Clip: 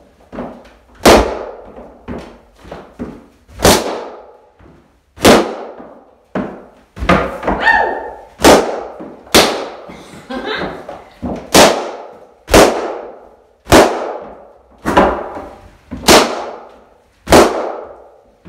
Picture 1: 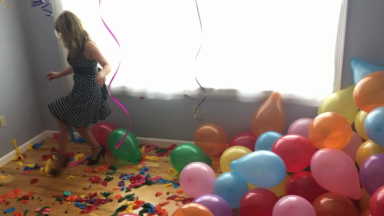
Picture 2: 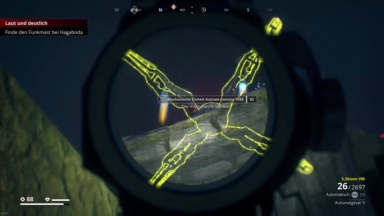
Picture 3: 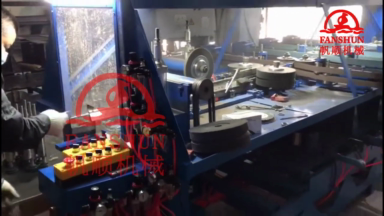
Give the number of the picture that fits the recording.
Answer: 1